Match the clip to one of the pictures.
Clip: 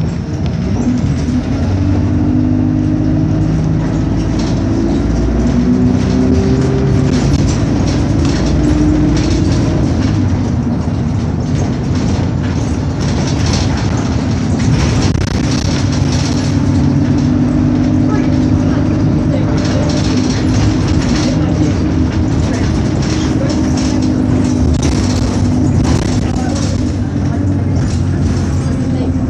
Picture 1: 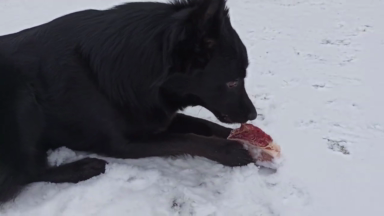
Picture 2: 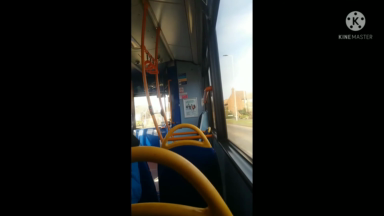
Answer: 2